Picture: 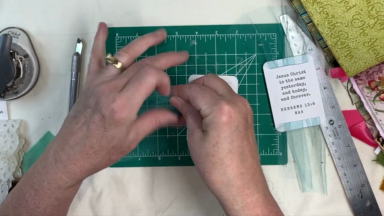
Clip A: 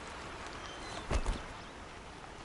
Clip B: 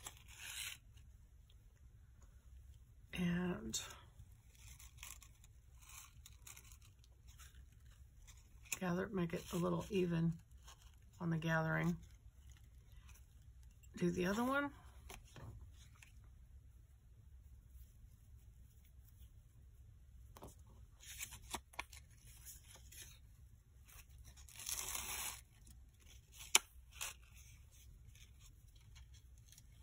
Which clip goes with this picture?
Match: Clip B